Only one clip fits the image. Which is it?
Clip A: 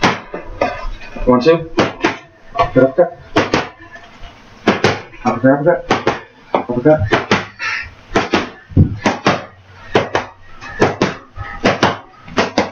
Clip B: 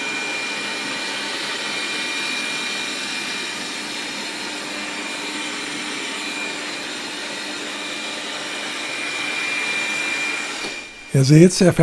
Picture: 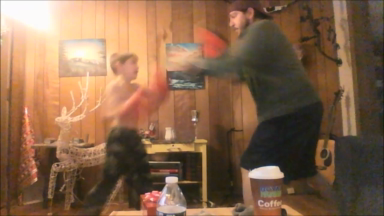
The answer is A